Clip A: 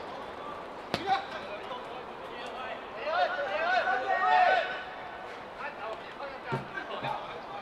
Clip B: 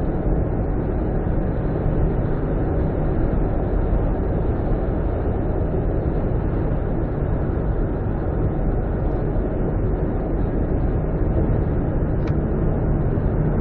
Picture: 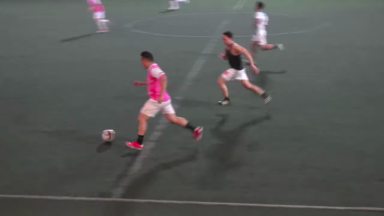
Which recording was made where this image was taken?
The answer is A